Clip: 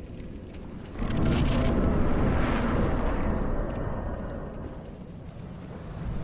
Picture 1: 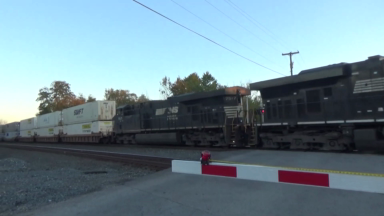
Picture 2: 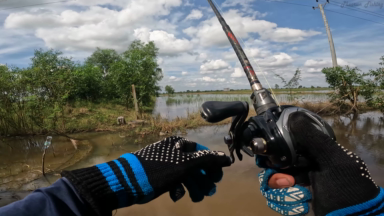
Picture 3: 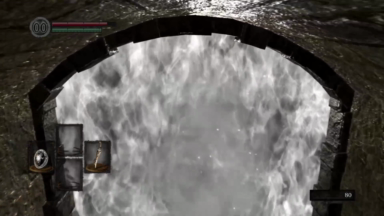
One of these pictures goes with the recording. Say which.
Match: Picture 3